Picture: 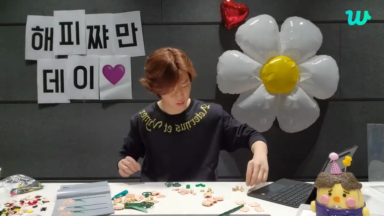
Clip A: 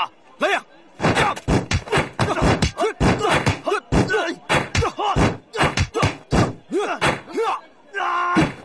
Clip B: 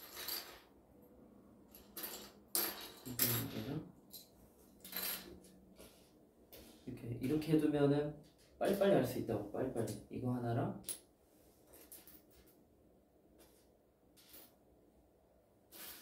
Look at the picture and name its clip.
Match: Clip B